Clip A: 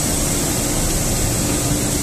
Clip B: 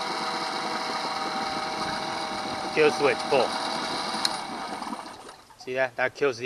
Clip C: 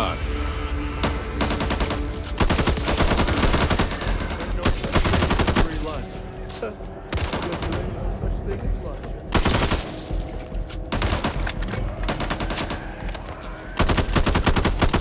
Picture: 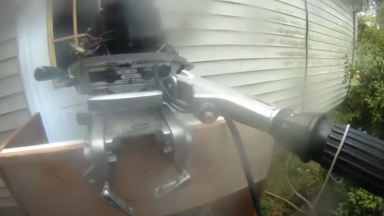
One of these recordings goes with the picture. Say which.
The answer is B